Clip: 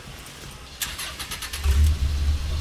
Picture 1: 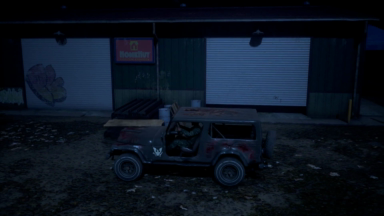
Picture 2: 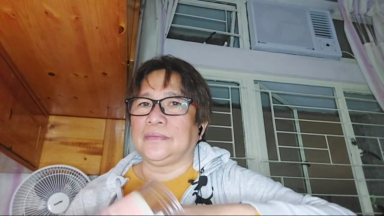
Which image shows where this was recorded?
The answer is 1